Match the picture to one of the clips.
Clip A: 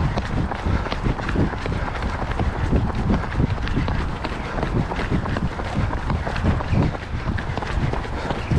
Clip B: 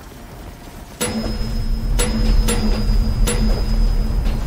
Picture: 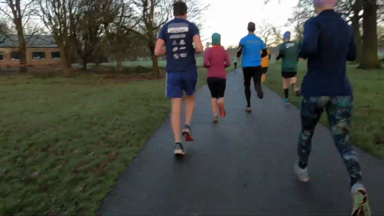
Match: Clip A